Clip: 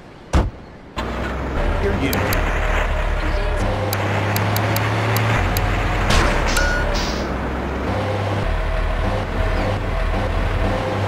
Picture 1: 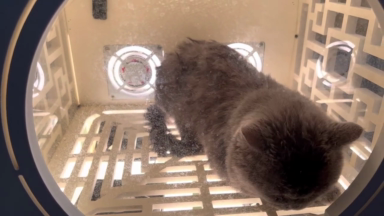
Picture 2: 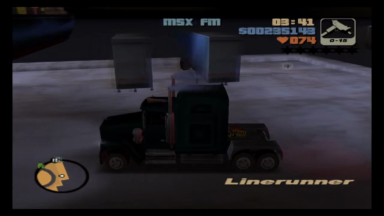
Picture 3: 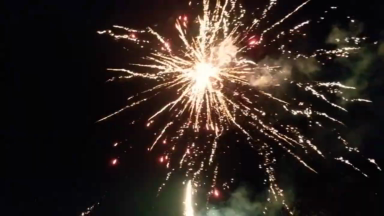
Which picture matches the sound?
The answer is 2